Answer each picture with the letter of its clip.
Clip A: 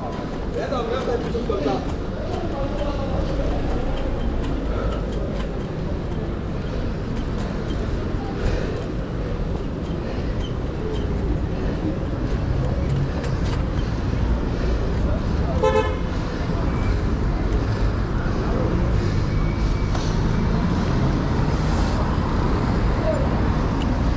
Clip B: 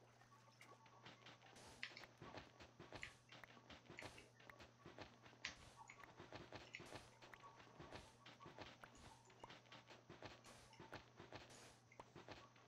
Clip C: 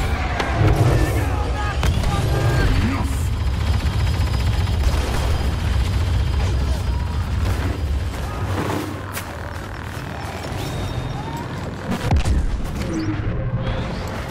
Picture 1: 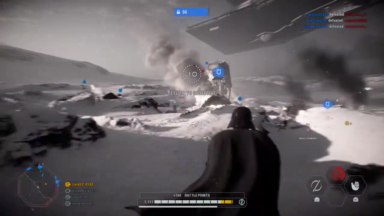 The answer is C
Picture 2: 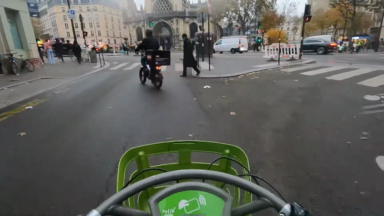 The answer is A